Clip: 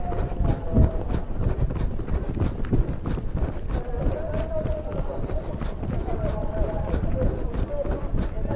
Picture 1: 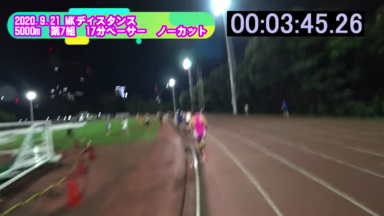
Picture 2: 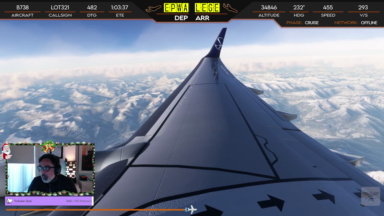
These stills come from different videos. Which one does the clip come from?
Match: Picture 1